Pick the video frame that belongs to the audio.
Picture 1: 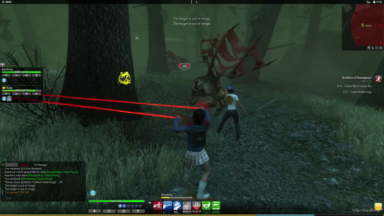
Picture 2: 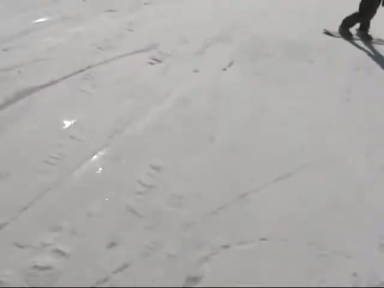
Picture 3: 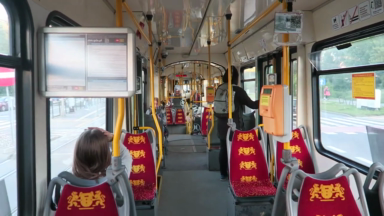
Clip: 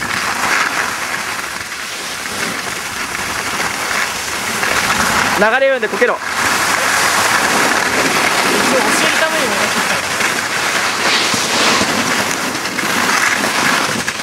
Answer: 2